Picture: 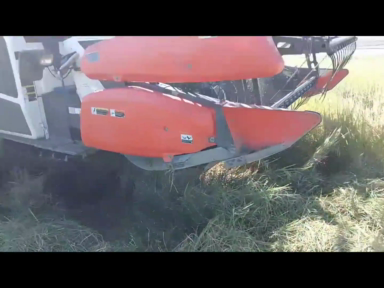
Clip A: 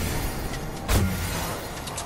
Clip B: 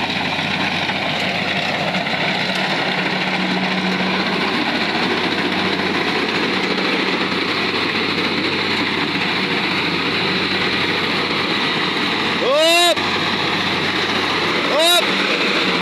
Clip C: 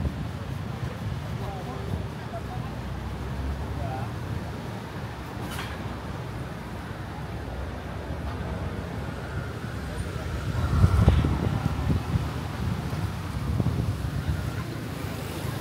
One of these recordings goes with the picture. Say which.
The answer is B